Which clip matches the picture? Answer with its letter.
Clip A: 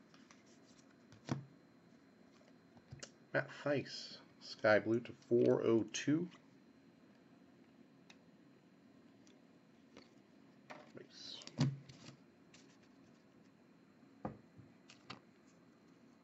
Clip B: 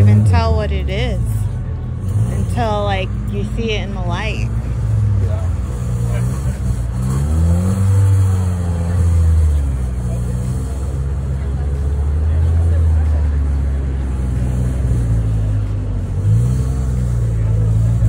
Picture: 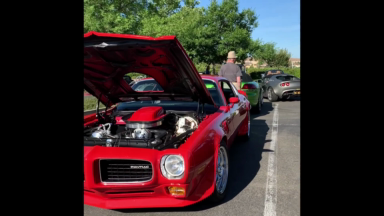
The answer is B